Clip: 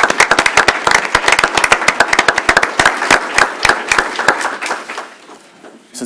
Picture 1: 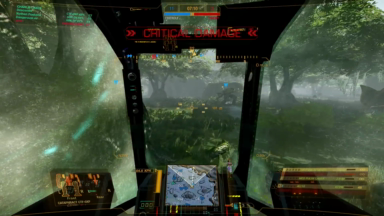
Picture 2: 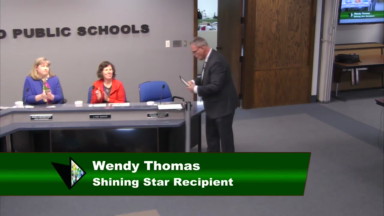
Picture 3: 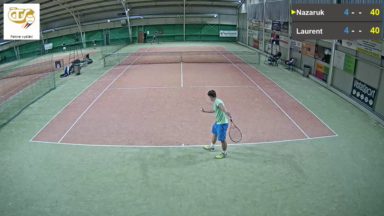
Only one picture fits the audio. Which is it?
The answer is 2